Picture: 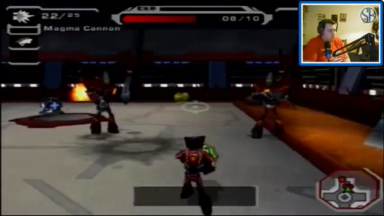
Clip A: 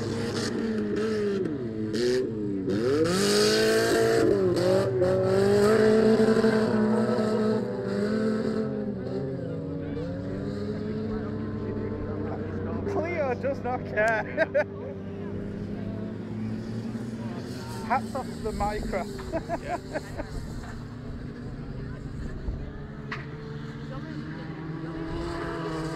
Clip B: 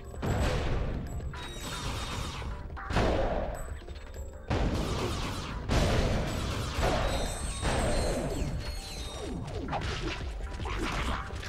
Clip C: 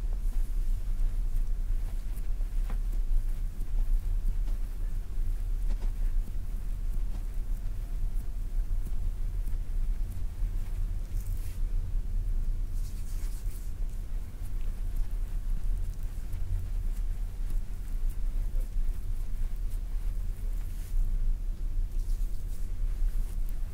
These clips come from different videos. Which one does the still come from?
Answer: B